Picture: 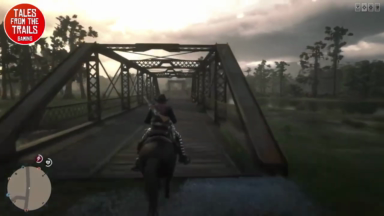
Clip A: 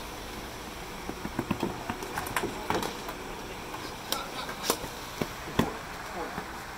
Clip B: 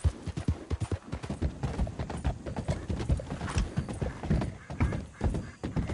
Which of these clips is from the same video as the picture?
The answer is B